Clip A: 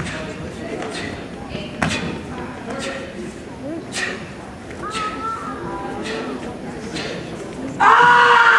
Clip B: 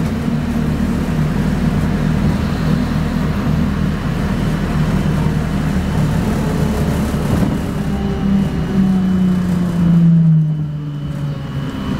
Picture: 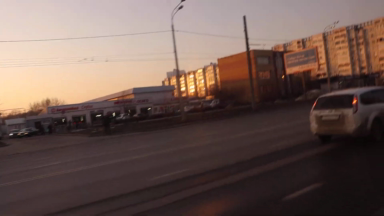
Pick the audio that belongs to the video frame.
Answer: B